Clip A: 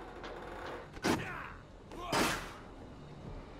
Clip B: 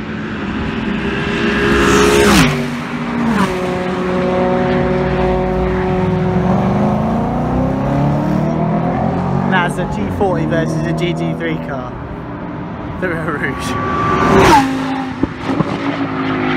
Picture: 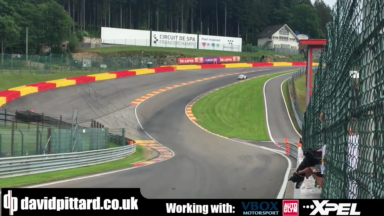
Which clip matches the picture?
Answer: B